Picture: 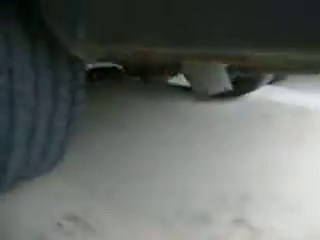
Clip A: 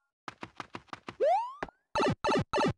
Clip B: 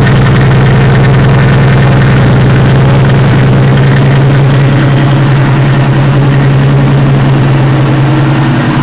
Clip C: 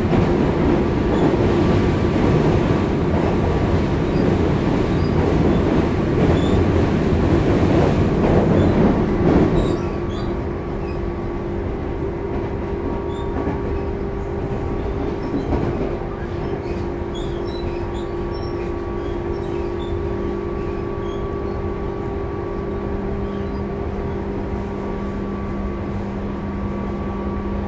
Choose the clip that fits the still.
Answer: B